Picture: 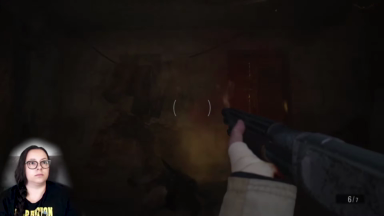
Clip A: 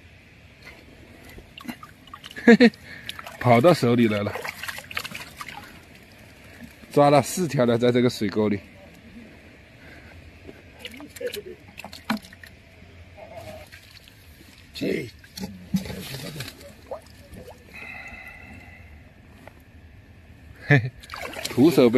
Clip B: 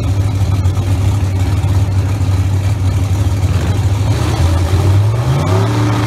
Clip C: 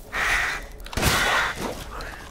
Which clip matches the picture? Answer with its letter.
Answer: C